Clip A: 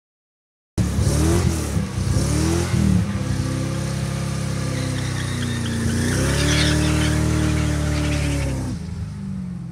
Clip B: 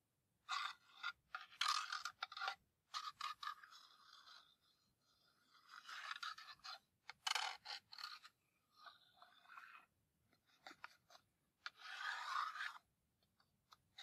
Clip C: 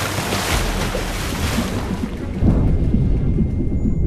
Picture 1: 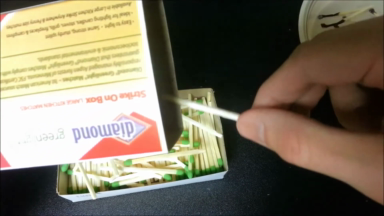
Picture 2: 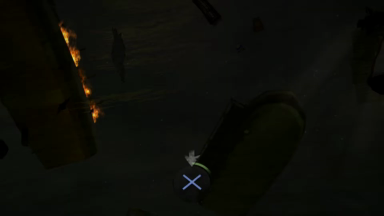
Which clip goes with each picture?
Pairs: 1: B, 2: C